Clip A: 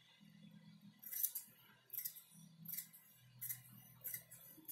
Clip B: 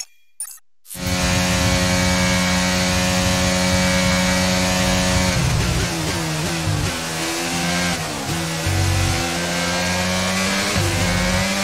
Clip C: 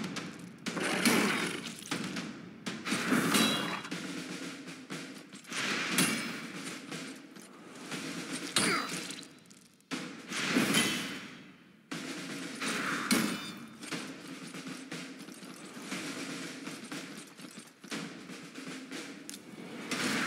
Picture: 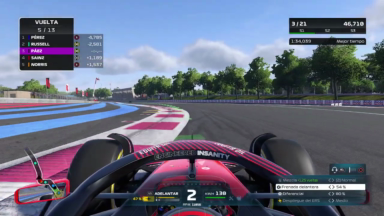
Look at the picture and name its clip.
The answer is B